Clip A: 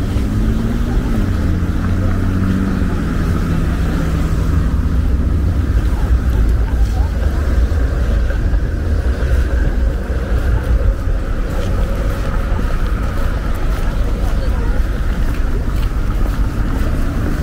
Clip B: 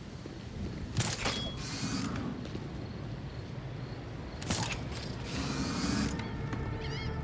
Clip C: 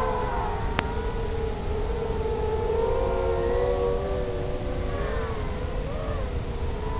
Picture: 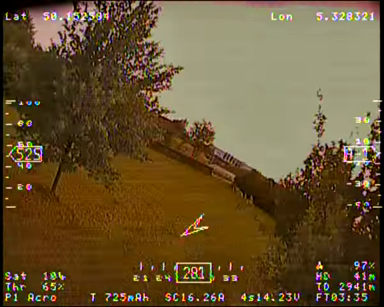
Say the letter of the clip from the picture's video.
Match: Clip C